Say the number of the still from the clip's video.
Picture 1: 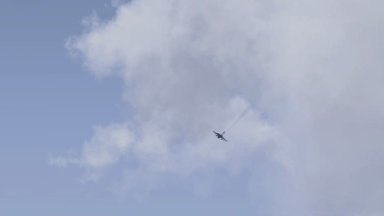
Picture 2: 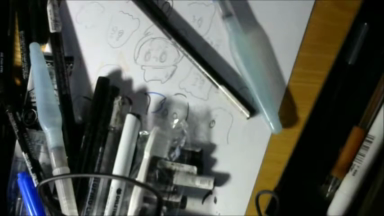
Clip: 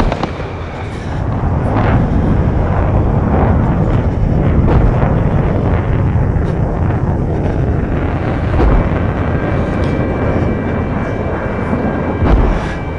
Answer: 1